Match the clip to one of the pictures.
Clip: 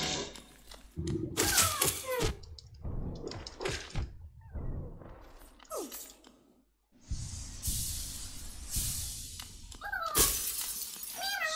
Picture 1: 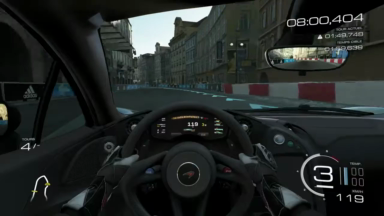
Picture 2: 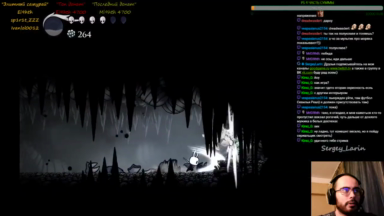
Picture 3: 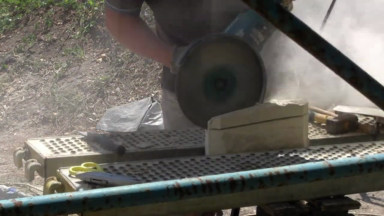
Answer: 2